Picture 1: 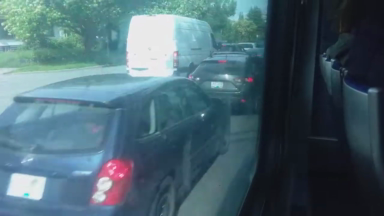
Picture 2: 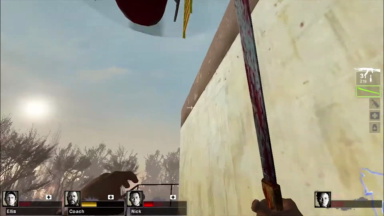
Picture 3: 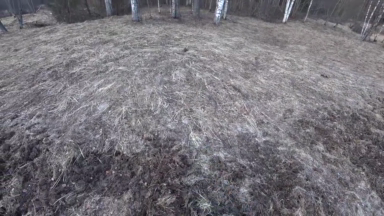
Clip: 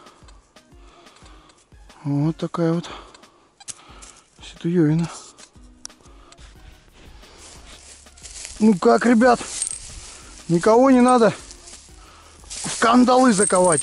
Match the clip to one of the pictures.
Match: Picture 3